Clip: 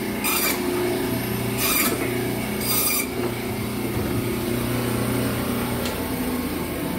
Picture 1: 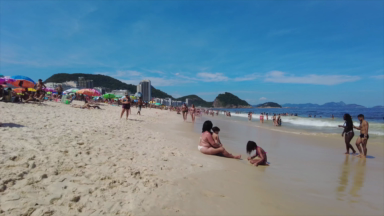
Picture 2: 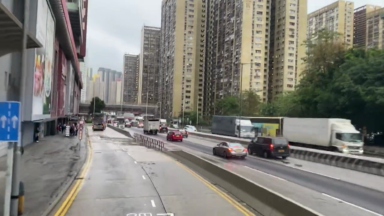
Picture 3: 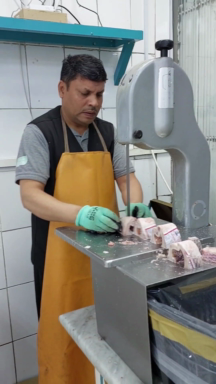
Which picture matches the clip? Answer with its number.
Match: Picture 3